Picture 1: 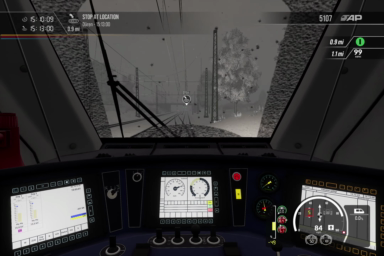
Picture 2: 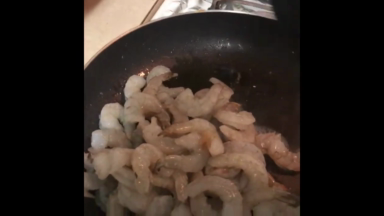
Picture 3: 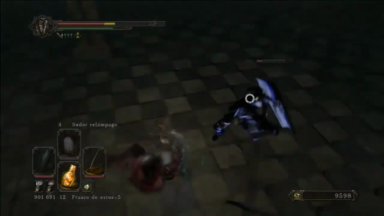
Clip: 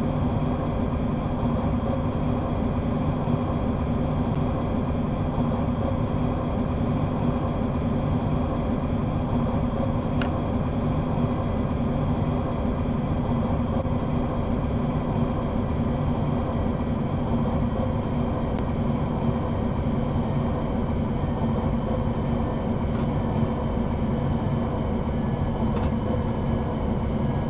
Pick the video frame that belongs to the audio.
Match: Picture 1